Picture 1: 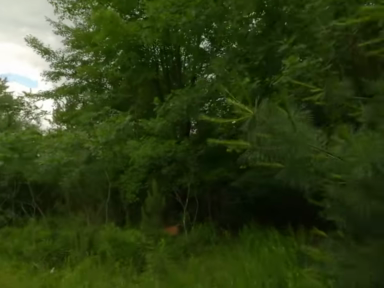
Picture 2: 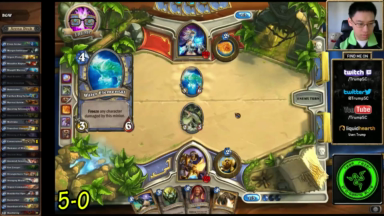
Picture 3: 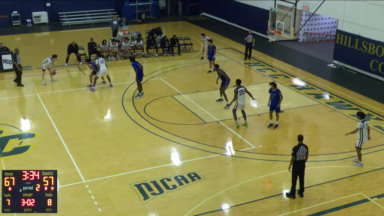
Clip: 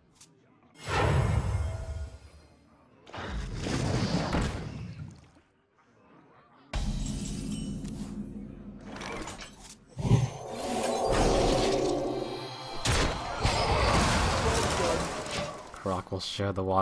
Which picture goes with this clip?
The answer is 2